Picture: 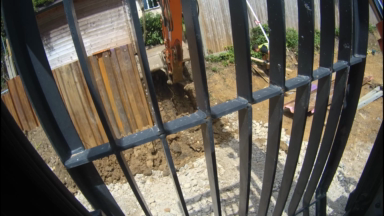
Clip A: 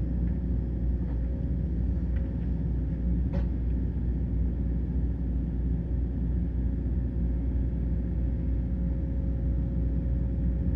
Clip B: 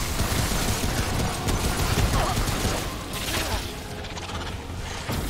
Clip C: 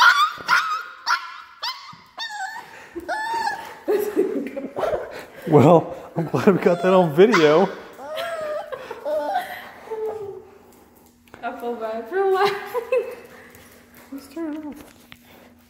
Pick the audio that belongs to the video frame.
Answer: A